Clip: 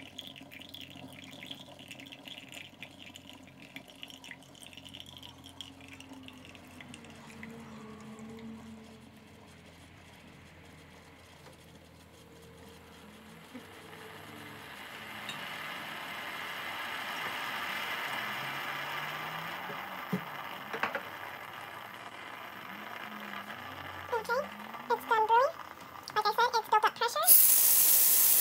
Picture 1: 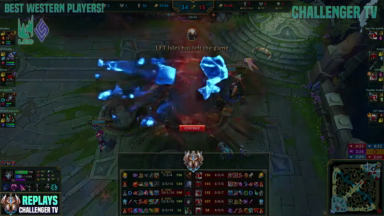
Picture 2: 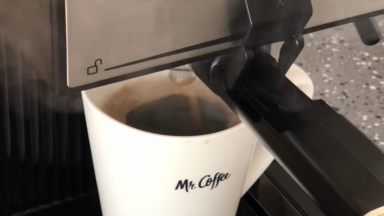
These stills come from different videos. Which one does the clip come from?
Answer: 2